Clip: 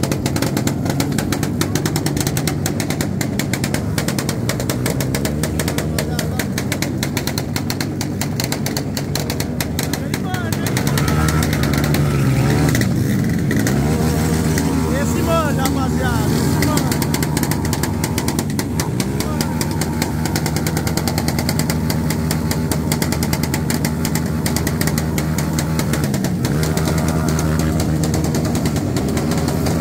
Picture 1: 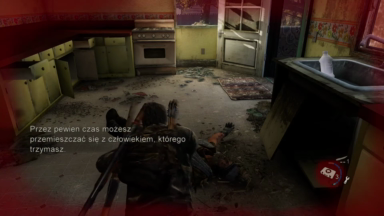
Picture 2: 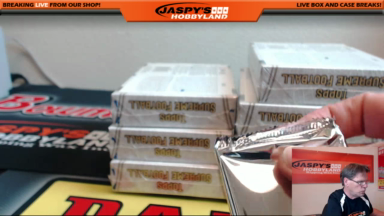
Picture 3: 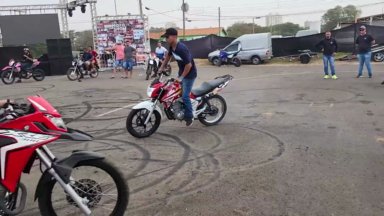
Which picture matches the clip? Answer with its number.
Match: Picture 3